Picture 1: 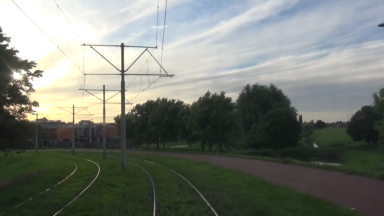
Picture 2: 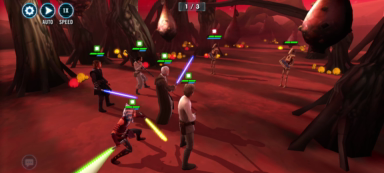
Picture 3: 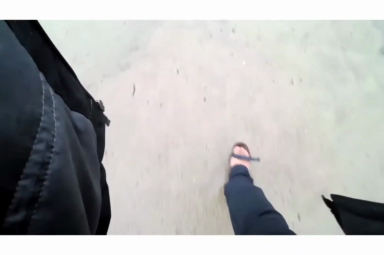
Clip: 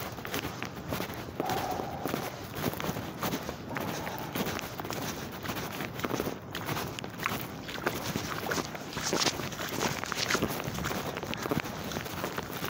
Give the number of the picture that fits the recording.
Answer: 3